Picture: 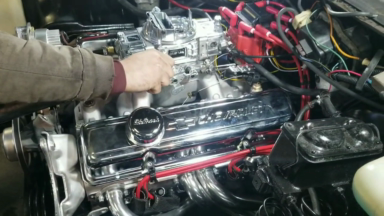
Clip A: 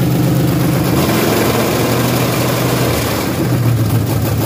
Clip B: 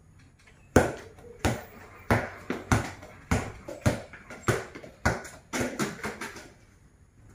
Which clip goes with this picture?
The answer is A